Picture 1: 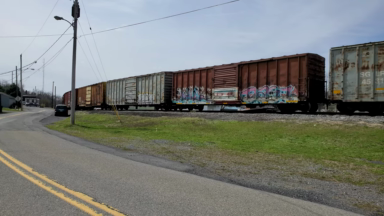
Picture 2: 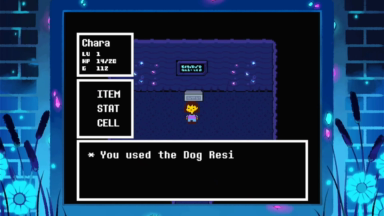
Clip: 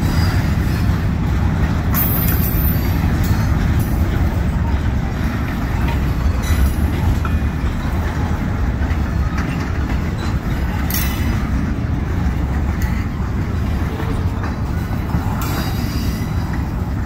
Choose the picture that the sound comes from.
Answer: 1